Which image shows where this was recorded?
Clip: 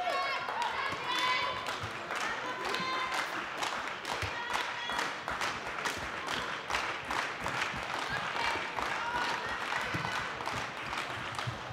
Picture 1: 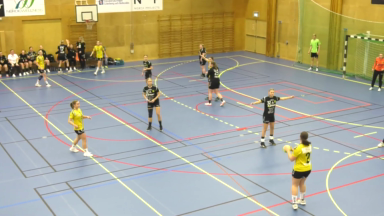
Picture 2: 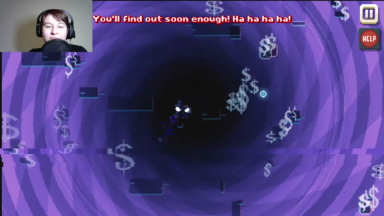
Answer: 1